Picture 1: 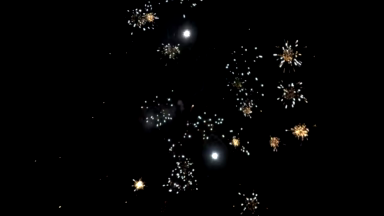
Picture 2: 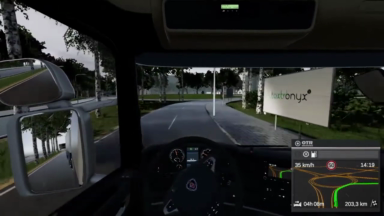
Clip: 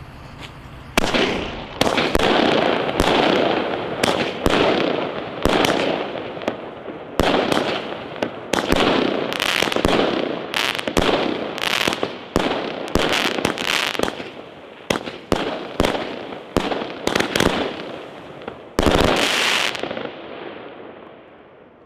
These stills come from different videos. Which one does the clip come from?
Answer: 1